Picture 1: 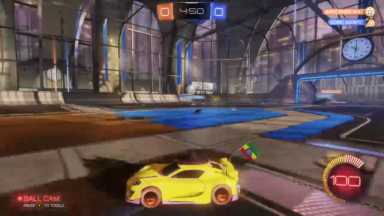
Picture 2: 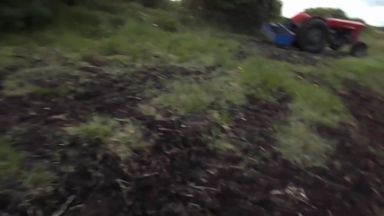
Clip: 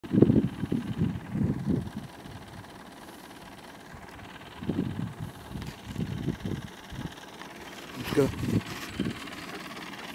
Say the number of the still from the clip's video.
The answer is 2